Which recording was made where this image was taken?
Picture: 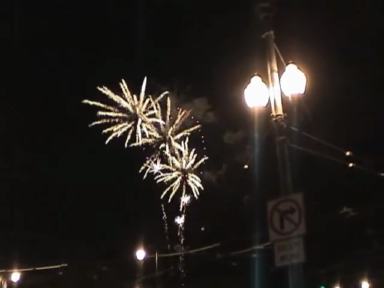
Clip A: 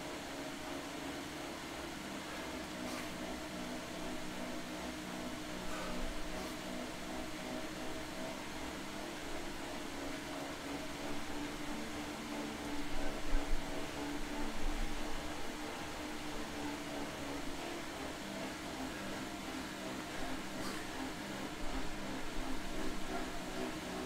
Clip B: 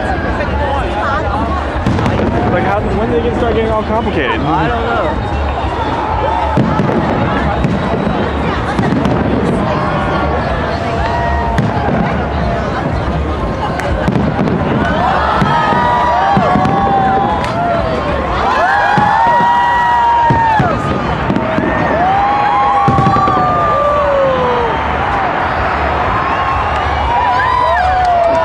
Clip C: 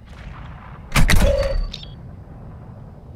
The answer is B